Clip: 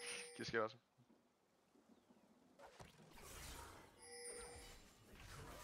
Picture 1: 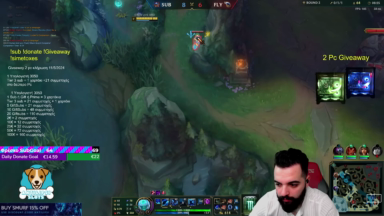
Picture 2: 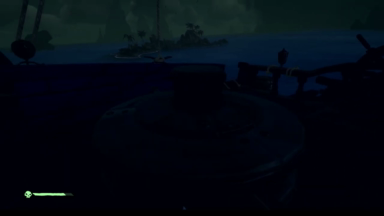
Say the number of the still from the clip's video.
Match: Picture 1